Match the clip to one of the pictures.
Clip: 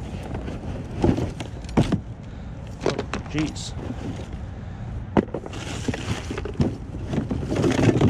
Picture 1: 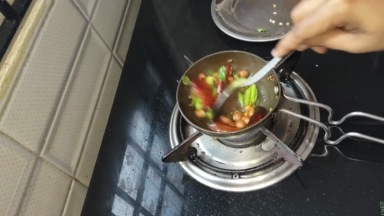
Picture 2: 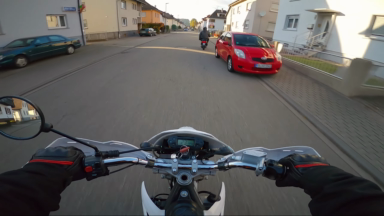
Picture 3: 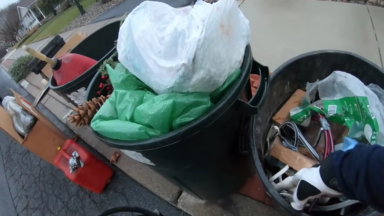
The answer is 3